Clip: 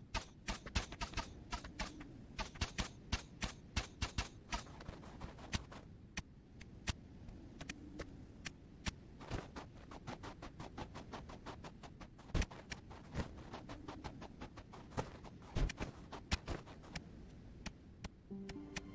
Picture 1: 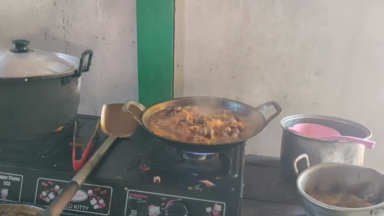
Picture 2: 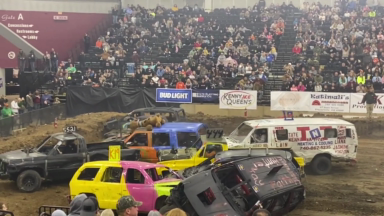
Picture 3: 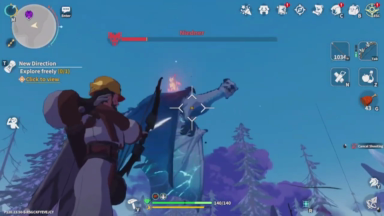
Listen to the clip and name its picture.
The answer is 3